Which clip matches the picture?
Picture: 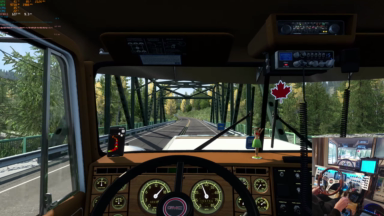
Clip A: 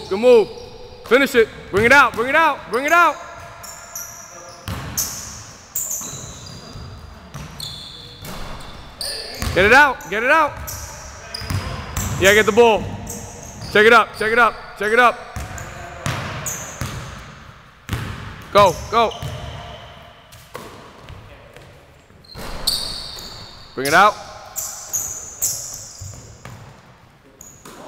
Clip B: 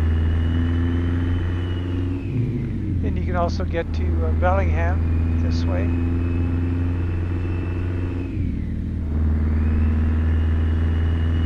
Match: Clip B